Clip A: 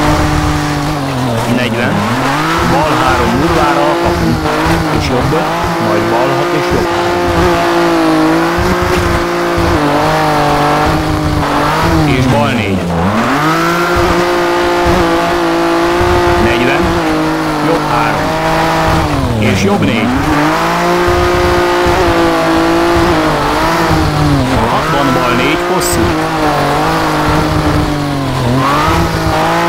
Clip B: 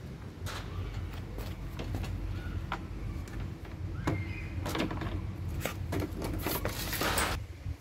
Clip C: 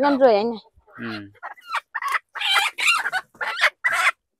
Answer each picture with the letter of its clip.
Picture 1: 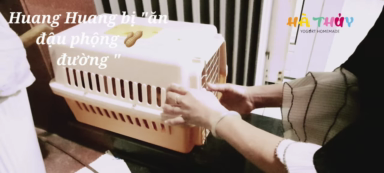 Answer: B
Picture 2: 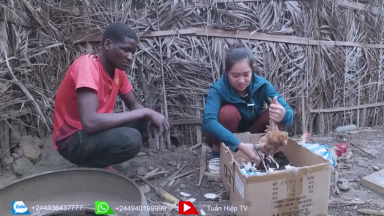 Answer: C